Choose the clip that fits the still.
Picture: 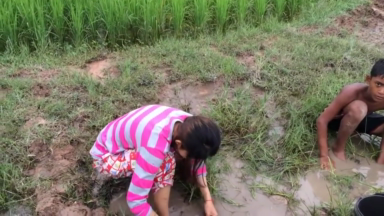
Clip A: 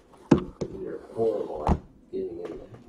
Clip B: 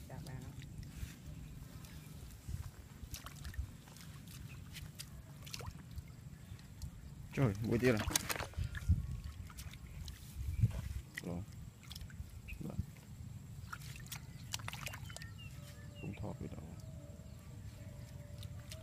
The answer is B